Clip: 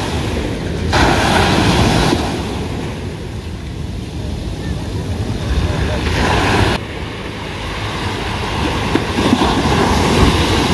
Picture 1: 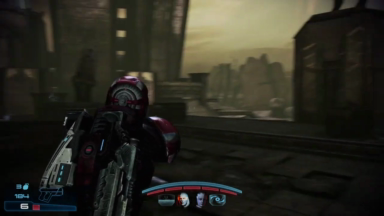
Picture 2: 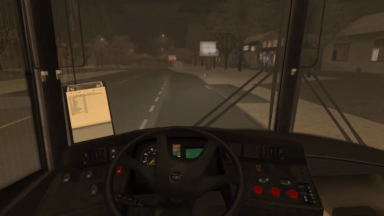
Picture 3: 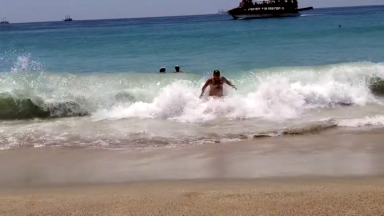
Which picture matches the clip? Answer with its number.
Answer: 3